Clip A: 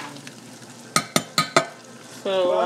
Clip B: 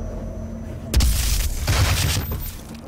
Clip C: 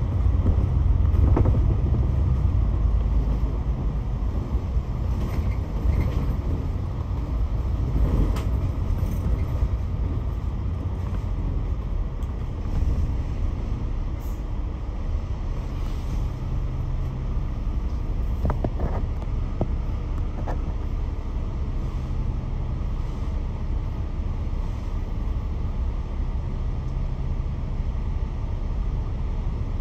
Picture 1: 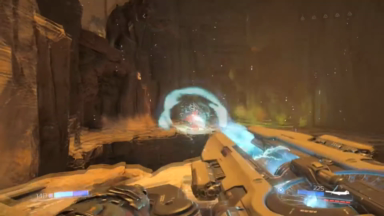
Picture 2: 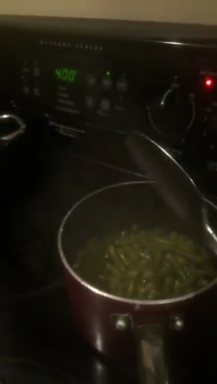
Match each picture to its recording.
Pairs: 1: B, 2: A